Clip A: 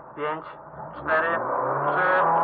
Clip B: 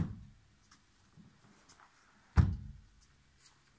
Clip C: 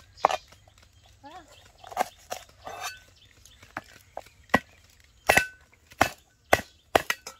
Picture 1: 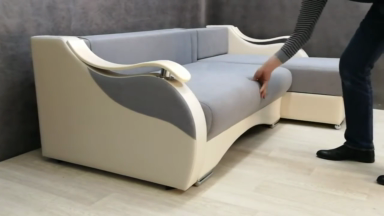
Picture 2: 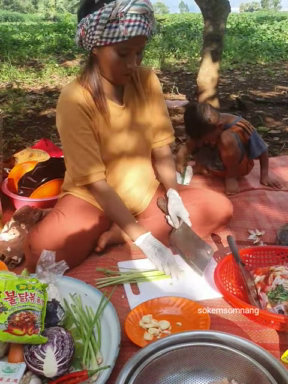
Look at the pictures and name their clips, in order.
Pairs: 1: B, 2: C